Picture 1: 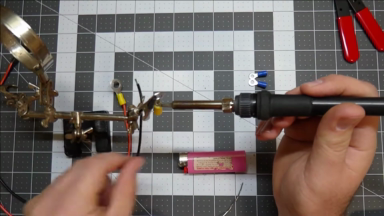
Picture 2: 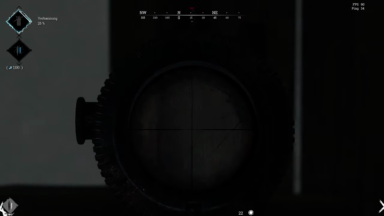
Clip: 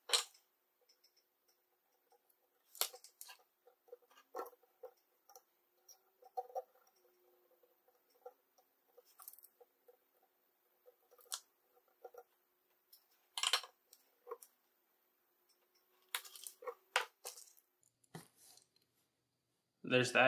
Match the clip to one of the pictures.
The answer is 1